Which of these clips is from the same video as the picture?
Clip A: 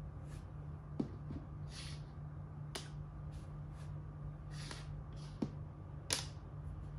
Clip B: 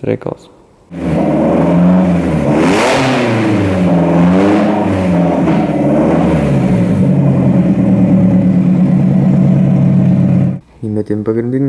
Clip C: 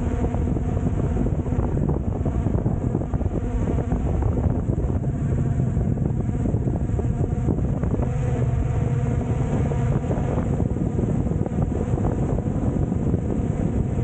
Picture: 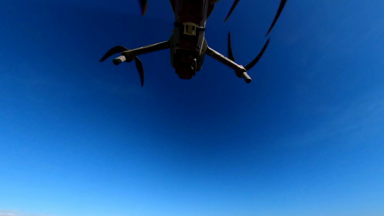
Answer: C